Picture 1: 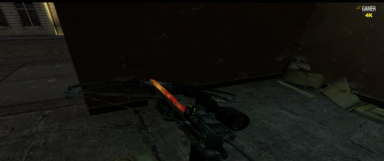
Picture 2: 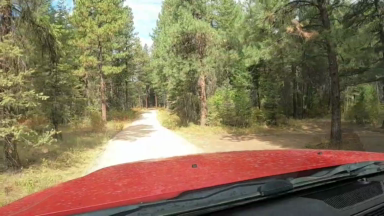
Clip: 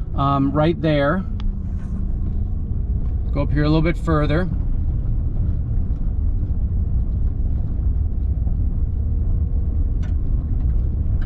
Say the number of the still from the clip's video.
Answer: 2